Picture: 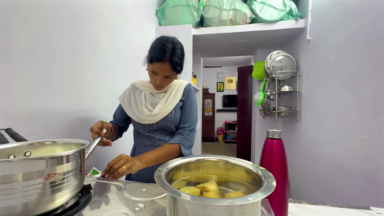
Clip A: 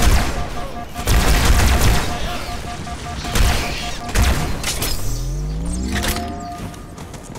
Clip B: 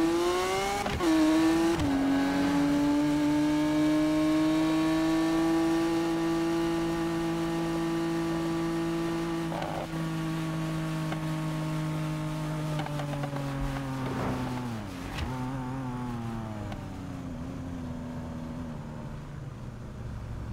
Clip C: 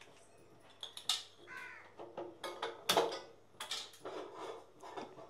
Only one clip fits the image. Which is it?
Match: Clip C